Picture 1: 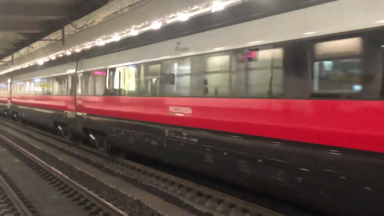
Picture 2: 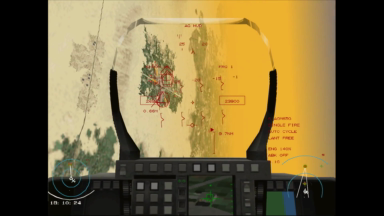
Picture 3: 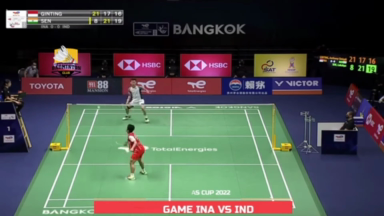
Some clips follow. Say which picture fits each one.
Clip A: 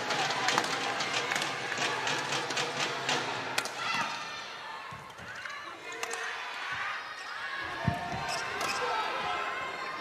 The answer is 3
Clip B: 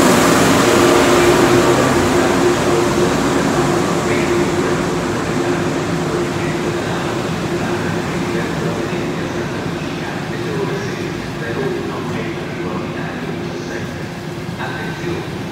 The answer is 1